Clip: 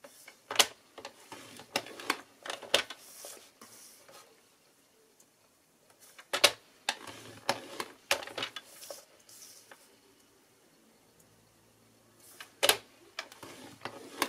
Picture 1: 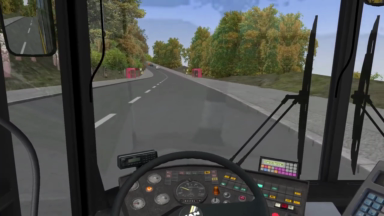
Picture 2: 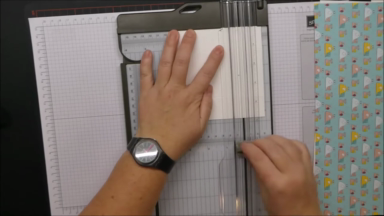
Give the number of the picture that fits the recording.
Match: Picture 2